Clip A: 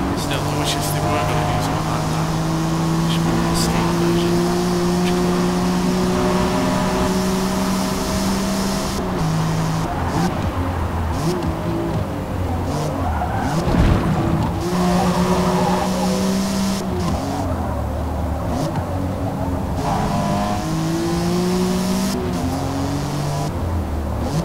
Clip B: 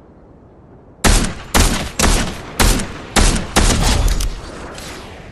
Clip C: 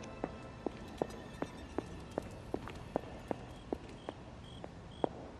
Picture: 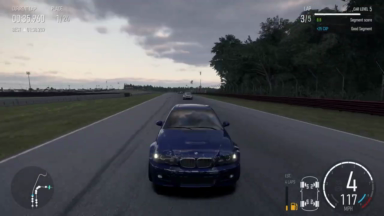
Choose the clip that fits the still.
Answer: A